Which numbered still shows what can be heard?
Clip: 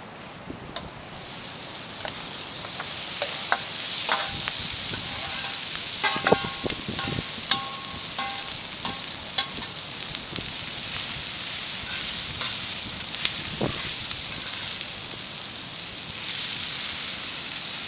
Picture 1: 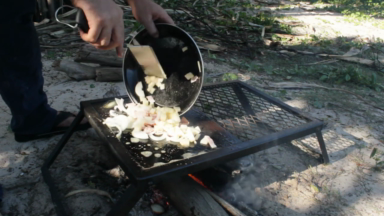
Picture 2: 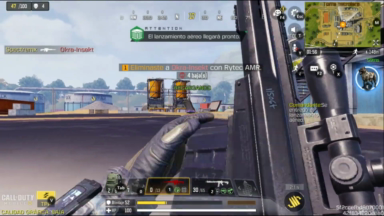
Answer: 1